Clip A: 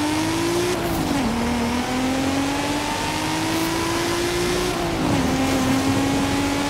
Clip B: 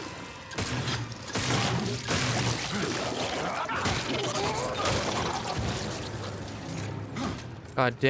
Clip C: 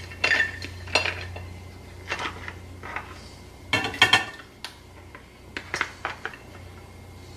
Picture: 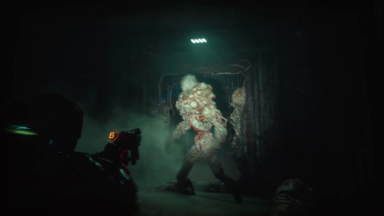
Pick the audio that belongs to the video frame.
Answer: B